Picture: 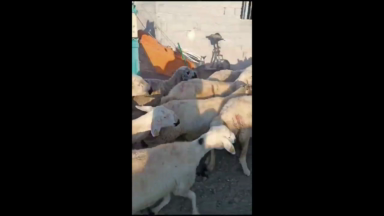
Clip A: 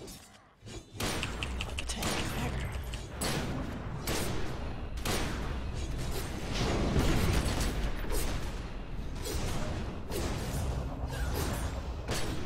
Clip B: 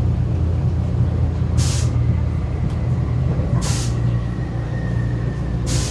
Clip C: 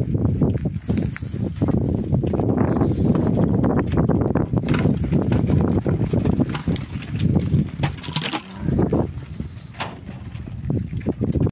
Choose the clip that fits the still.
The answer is C